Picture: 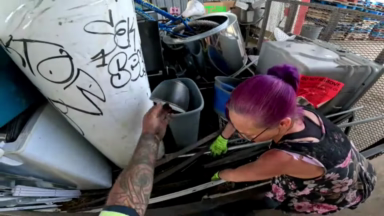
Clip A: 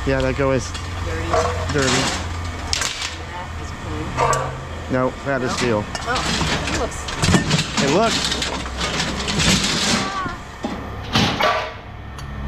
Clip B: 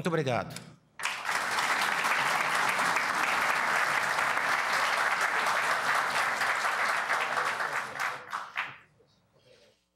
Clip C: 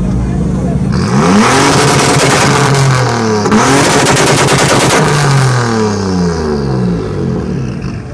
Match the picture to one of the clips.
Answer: A